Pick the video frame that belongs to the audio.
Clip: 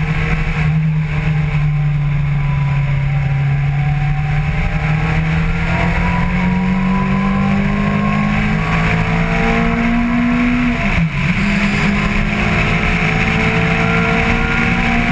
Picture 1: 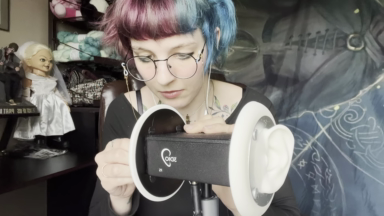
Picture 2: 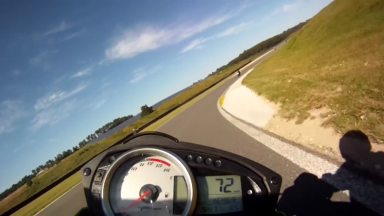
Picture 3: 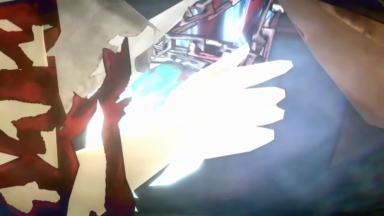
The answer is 2